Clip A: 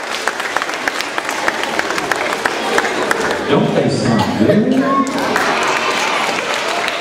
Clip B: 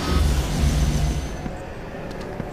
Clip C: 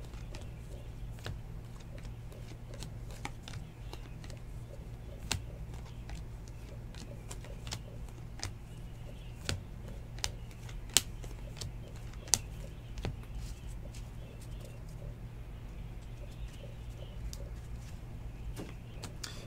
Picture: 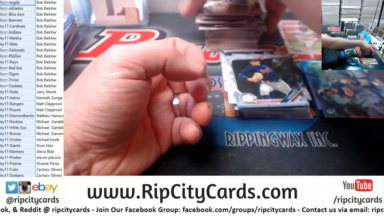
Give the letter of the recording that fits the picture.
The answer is C